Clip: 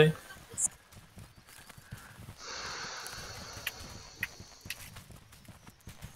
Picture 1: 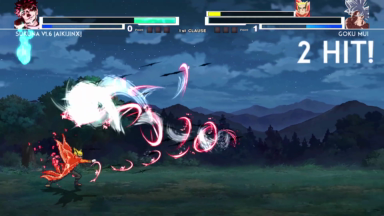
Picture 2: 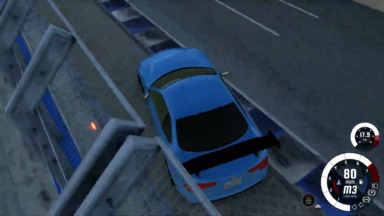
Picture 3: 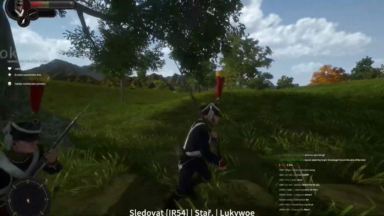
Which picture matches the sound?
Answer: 3